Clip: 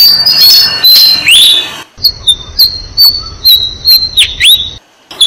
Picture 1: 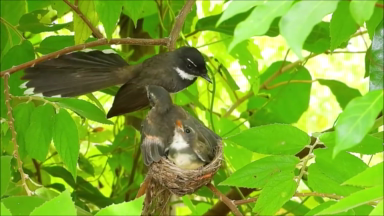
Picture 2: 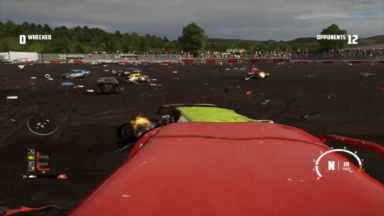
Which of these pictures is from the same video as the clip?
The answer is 1